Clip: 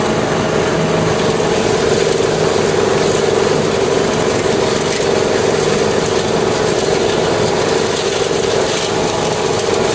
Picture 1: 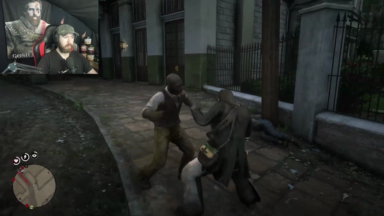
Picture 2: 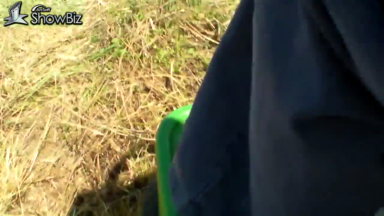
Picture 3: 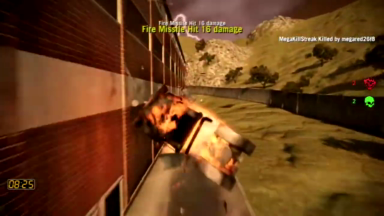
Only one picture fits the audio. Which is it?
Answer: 2